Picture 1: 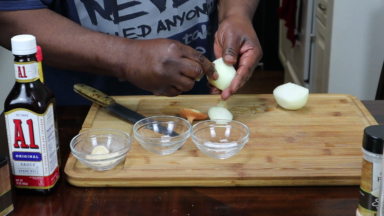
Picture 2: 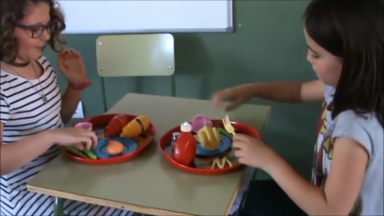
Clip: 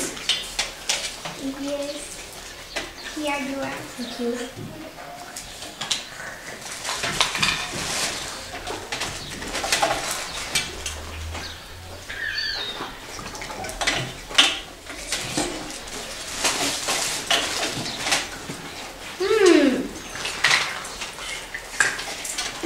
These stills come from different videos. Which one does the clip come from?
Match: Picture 2